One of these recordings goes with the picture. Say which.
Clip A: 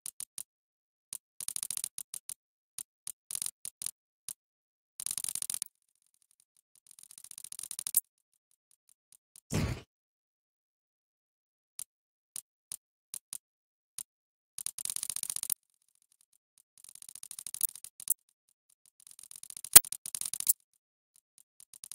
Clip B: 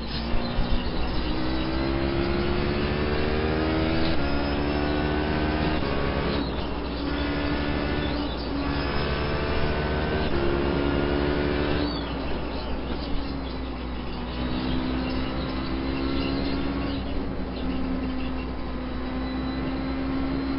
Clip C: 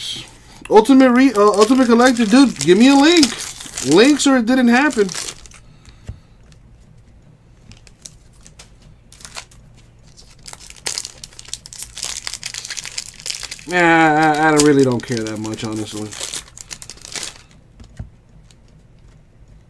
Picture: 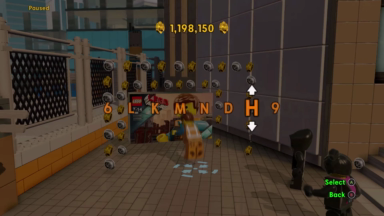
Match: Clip A